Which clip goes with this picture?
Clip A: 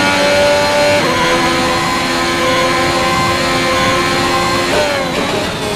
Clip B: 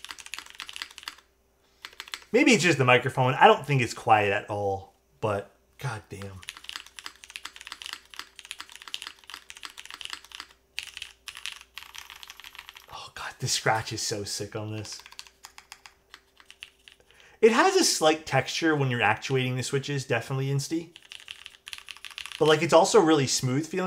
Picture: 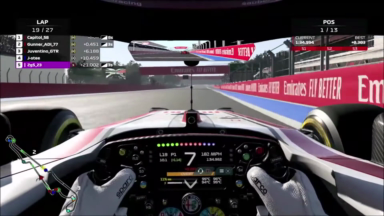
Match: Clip A